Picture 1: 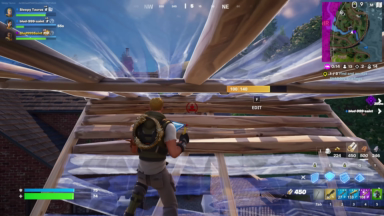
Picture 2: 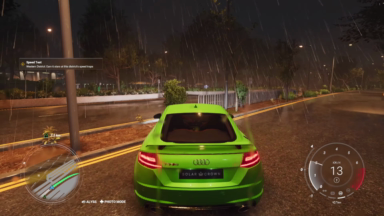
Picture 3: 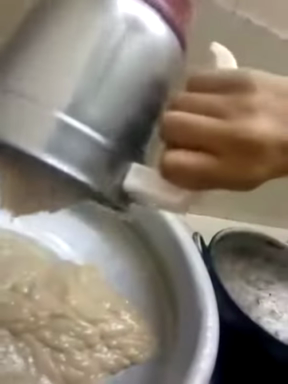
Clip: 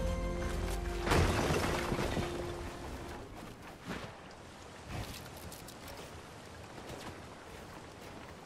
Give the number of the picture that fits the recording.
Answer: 1